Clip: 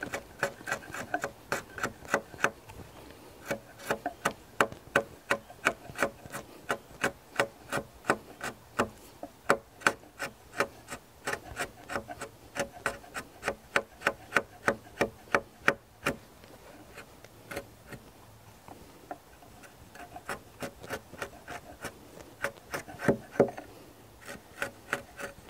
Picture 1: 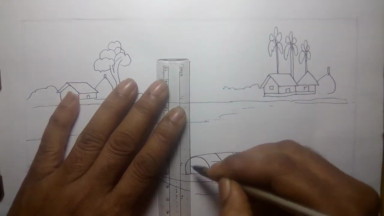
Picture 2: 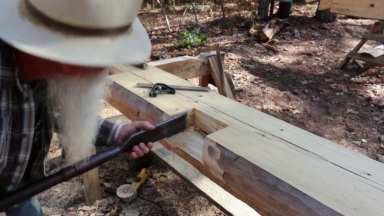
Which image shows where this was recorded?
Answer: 2